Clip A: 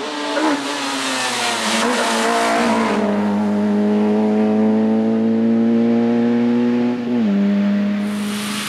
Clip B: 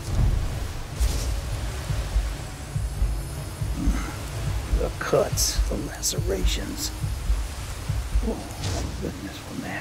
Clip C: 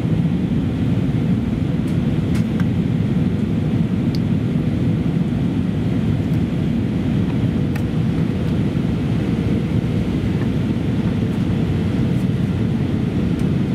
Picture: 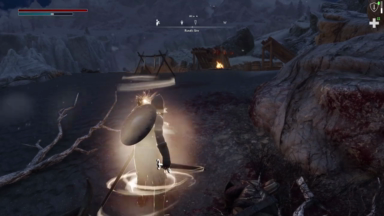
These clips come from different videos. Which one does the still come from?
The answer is B